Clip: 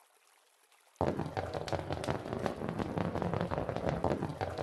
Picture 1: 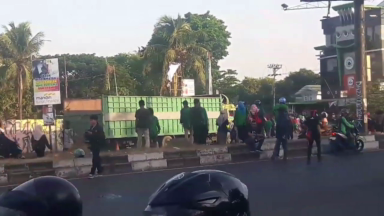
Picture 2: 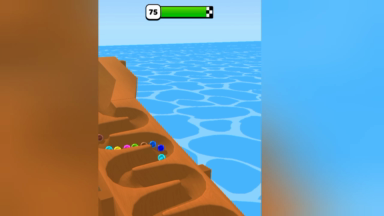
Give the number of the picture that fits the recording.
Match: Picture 2